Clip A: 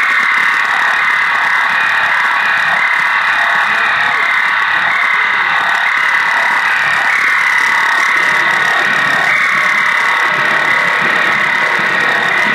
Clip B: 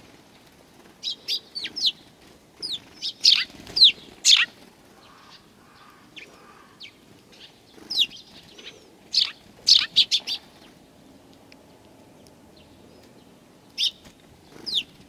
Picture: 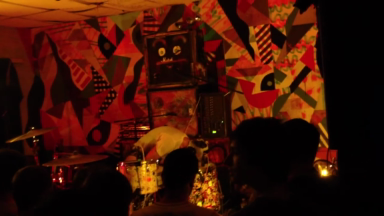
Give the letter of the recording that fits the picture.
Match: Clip A